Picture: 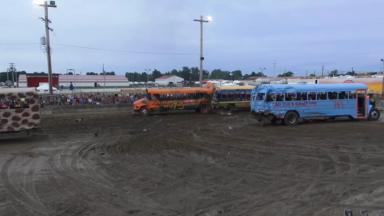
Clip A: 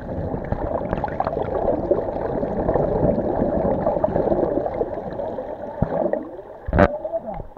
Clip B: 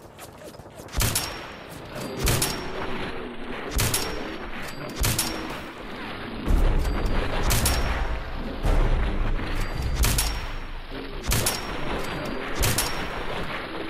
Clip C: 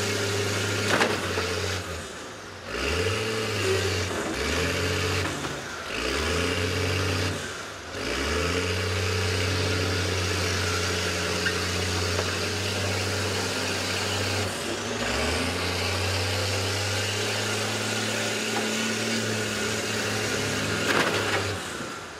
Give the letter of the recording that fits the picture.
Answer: C